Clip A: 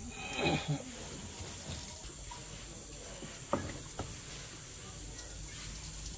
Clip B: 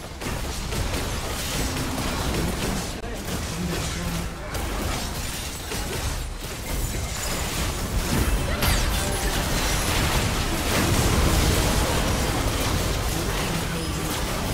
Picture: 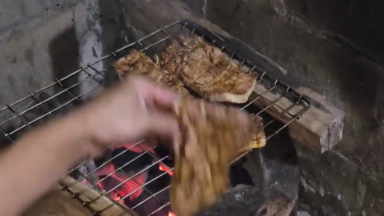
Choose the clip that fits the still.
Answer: A